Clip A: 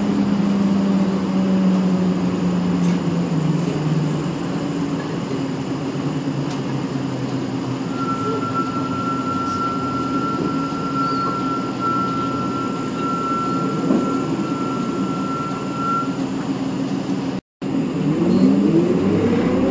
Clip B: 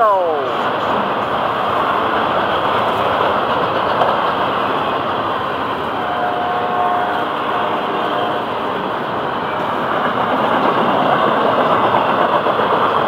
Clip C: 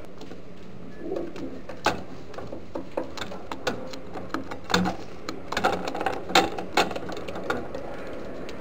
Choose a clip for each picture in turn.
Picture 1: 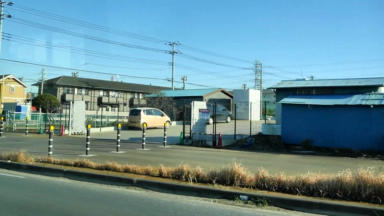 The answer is A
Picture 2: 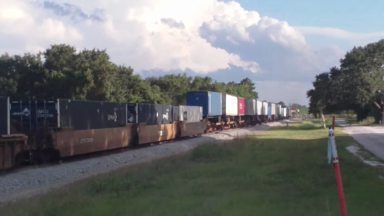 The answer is B